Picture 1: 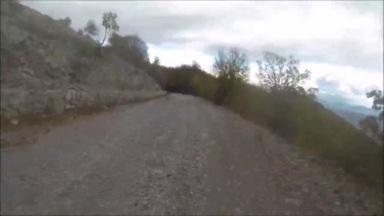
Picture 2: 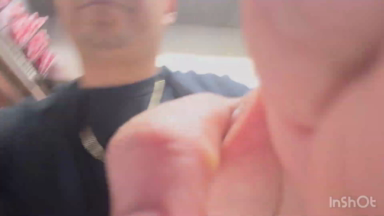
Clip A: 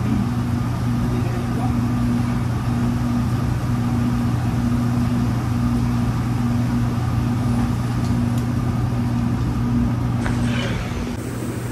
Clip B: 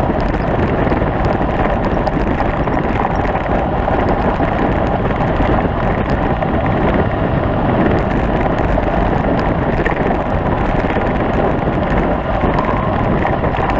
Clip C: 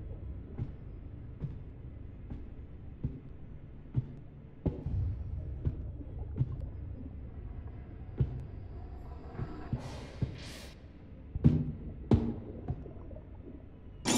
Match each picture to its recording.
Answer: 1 B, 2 A